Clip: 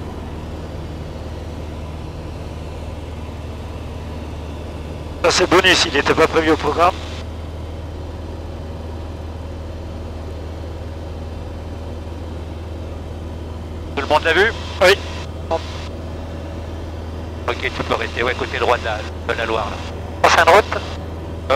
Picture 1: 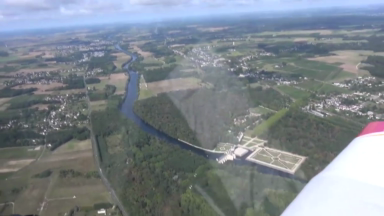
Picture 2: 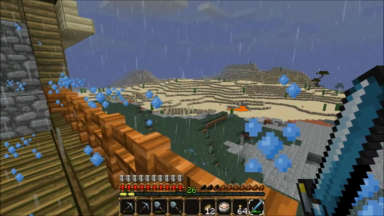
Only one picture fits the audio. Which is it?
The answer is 1